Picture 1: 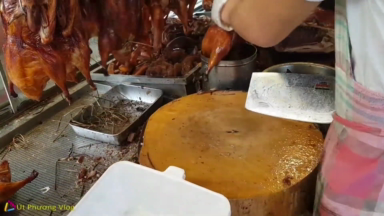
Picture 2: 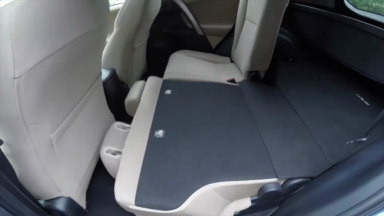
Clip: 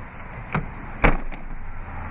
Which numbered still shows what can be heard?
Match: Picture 2